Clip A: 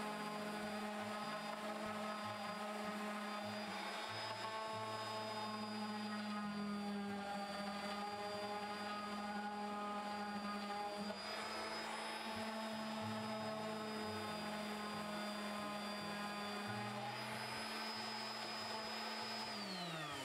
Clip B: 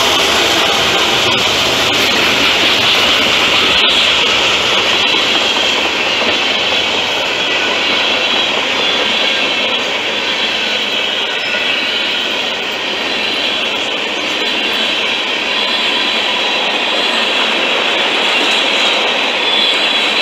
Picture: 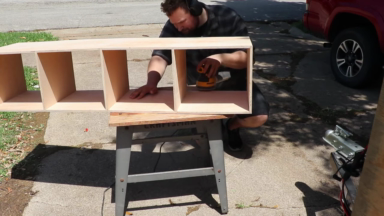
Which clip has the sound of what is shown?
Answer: A